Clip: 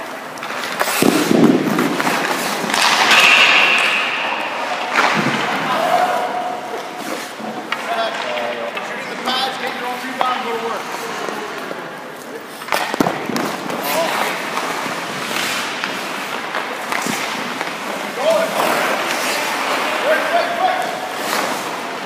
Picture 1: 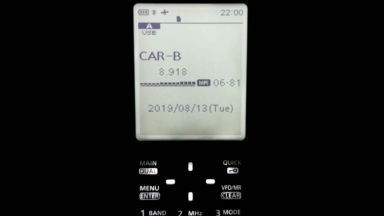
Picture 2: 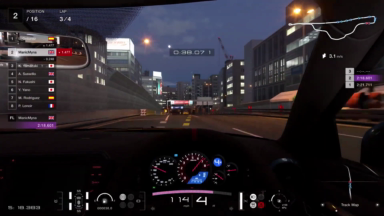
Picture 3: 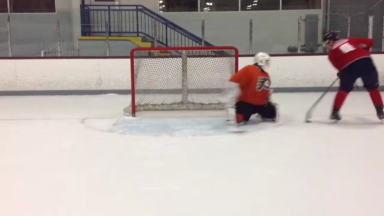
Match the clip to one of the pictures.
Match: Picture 3